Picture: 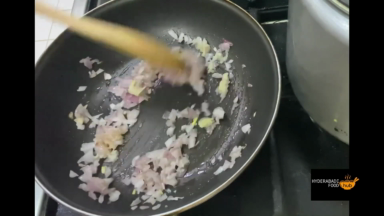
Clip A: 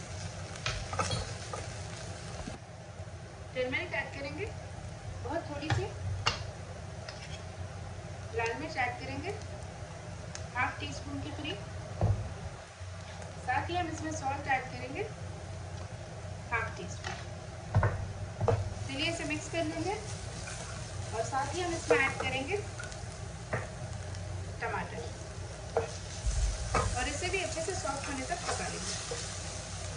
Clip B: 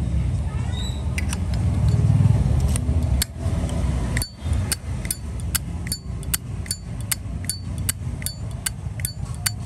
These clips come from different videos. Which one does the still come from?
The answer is A